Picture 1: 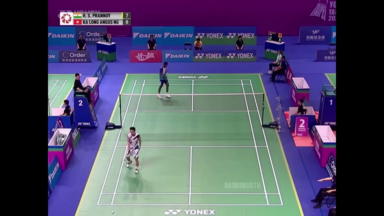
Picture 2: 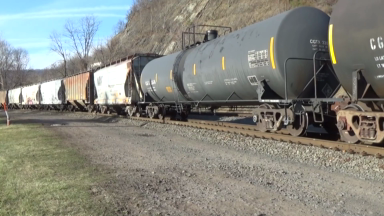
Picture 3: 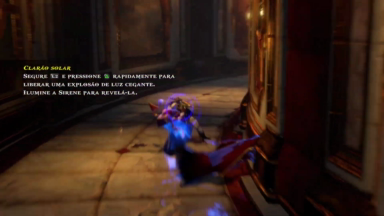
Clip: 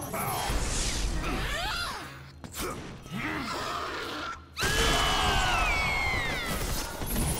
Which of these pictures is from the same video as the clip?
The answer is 3